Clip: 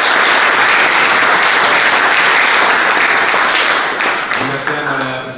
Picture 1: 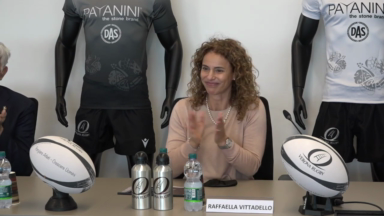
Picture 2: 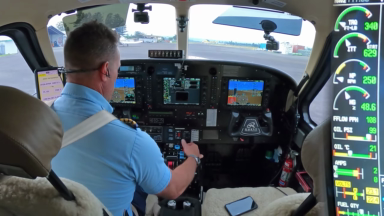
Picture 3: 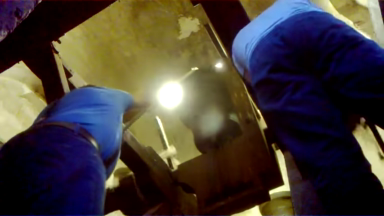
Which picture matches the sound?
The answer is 1